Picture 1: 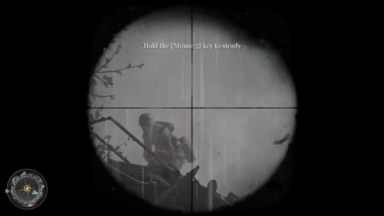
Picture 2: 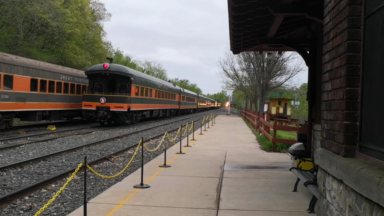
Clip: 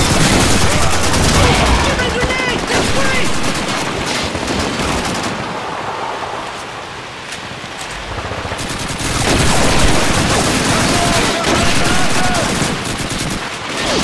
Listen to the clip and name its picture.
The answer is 1